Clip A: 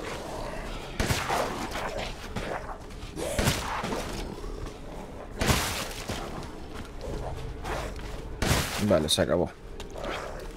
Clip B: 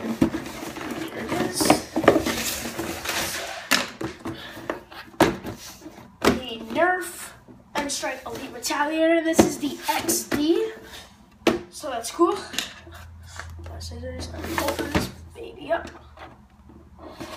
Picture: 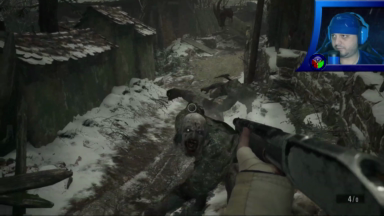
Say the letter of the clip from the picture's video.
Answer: A